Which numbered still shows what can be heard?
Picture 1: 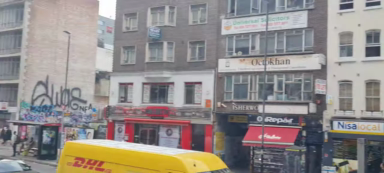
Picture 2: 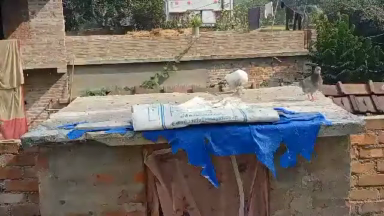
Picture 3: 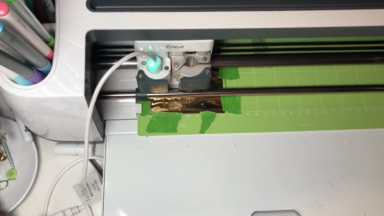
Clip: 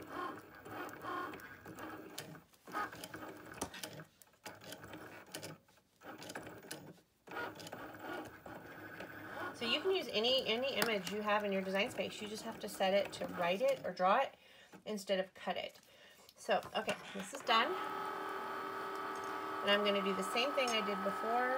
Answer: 3